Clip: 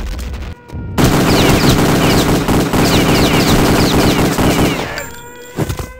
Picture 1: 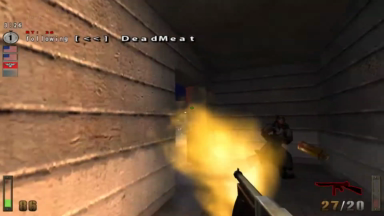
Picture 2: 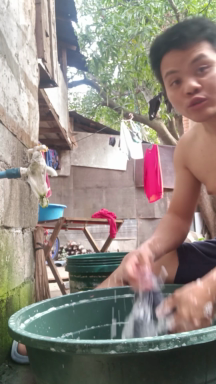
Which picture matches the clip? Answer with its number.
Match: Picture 1